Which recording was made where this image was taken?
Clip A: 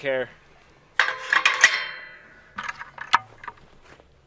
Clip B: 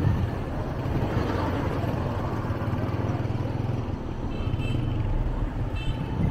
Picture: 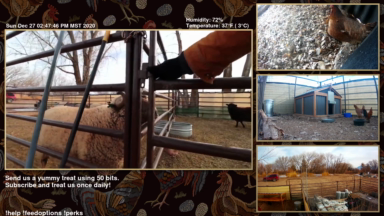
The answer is A